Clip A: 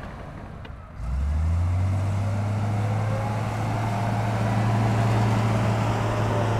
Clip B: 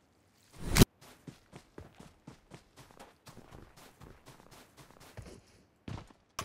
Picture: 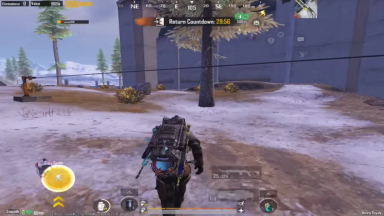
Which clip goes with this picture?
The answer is B